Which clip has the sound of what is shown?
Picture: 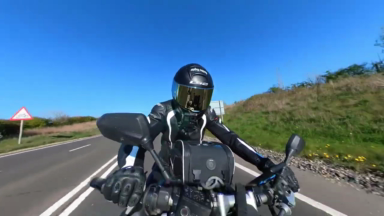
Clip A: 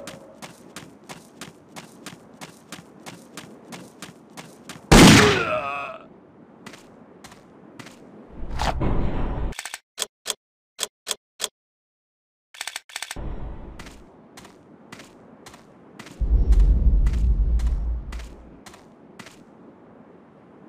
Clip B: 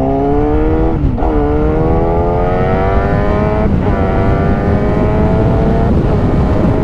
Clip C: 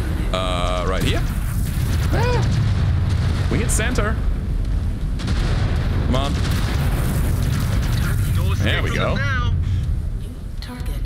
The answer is B